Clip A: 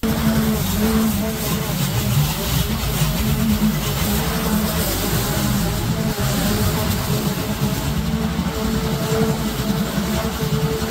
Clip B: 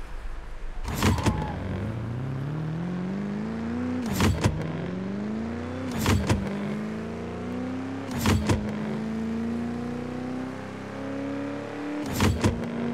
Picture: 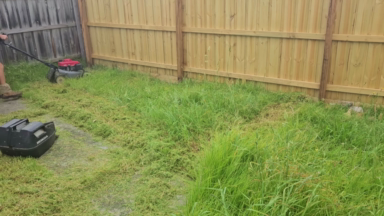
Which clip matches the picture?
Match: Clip A